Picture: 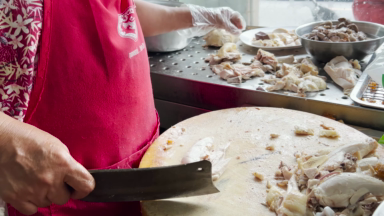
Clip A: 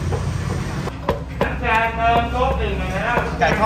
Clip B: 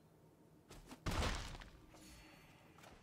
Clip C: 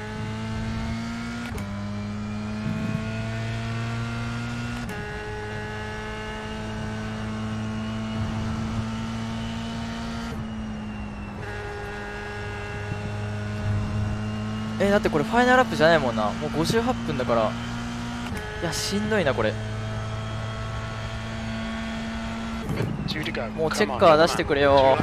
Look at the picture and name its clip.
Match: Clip A